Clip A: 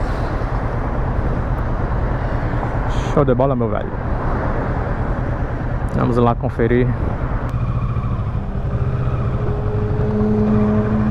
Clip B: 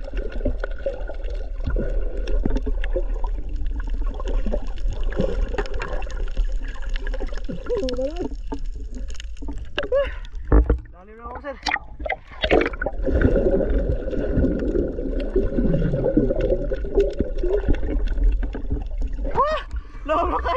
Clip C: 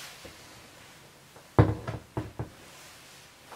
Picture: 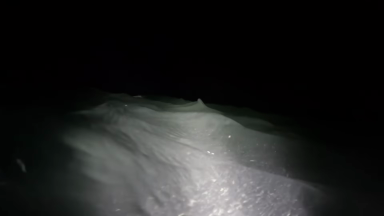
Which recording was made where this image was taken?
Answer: B